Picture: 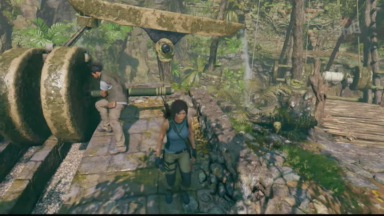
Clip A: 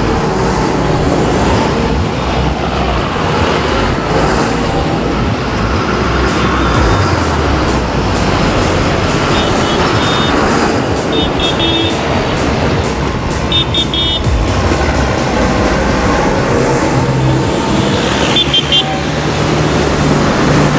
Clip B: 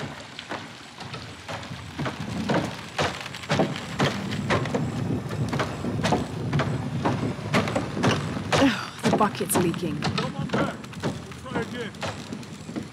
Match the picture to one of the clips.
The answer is B